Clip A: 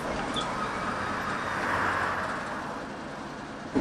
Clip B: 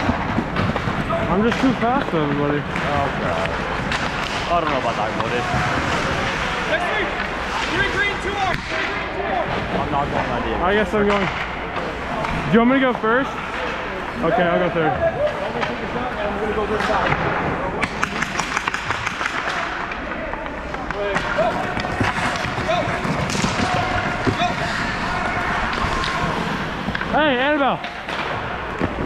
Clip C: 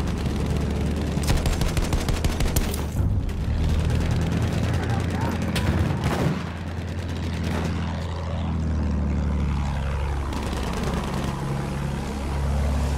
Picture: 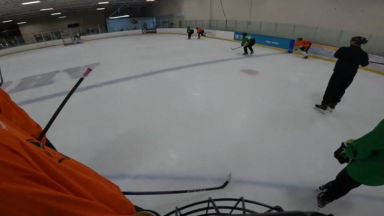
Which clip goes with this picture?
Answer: B